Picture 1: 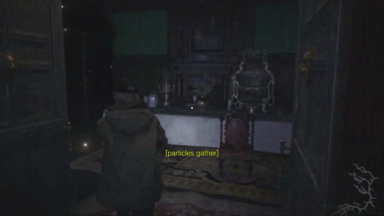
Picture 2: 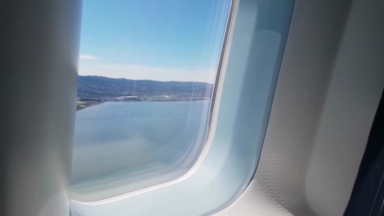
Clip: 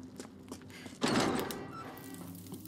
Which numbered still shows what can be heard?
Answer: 1